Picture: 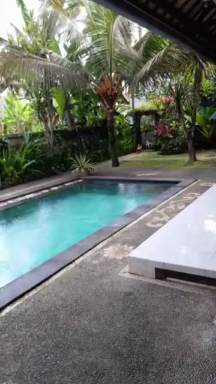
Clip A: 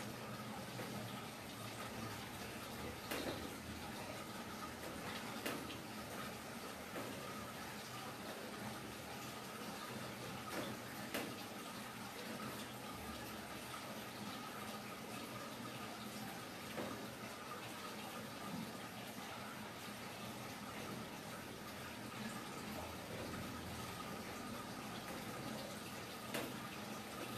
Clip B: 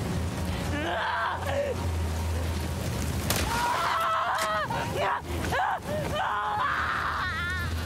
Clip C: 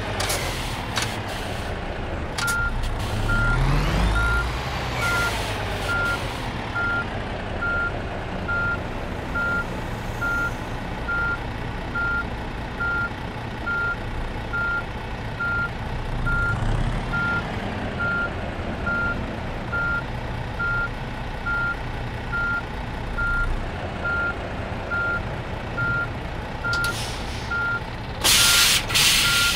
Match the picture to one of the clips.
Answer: A